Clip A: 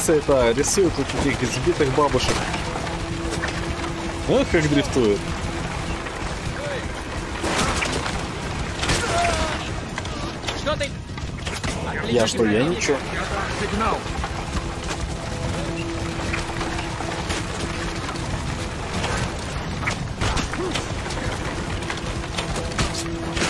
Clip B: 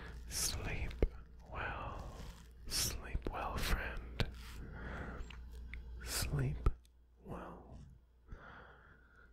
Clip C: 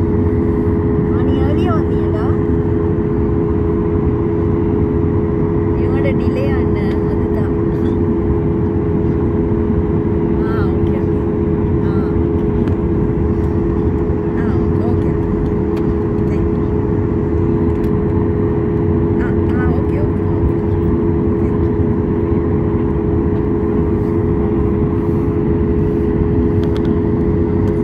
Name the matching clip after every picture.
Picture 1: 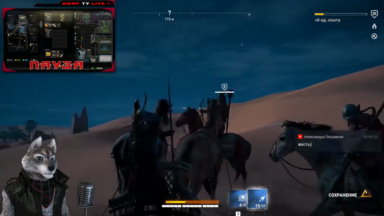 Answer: A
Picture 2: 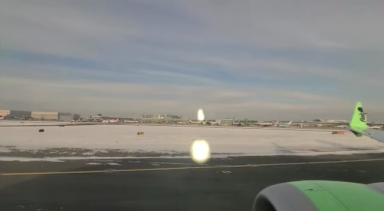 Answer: C